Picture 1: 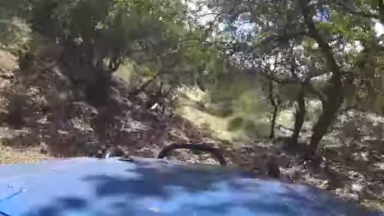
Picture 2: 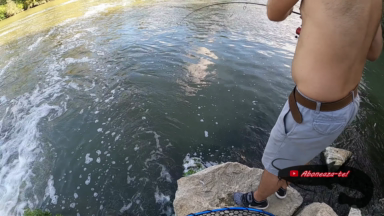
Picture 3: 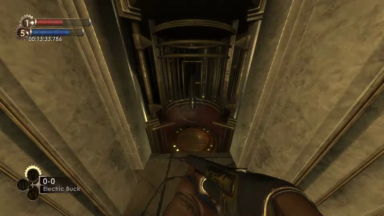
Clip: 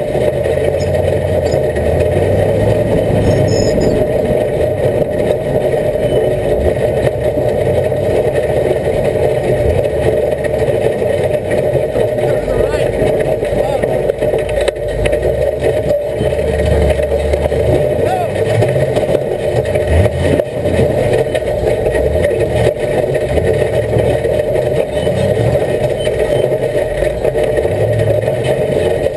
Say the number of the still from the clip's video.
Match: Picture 1